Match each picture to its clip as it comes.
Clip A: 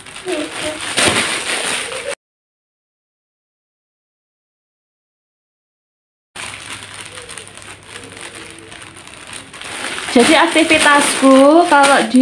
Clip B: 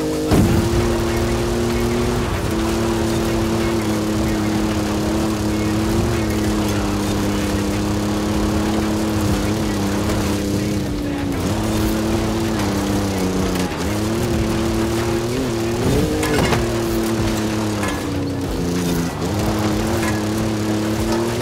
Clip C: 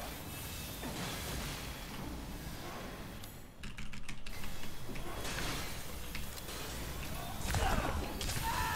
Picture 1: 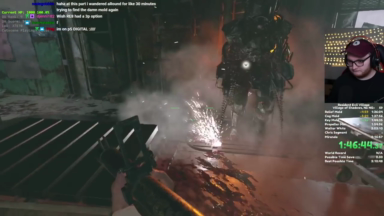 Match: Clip C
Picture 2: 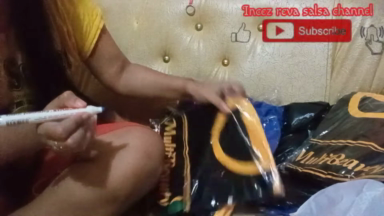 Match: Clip A